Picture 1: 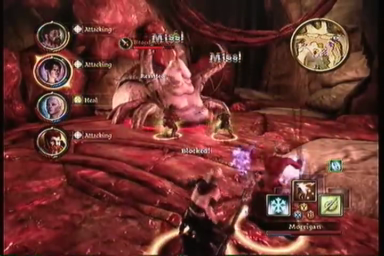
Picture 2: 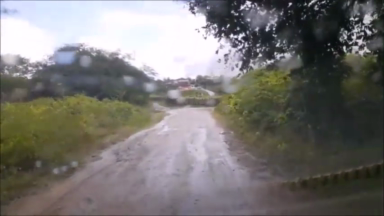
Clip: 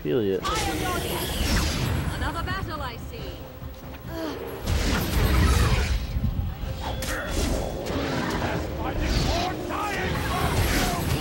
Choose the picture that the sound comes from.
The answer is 1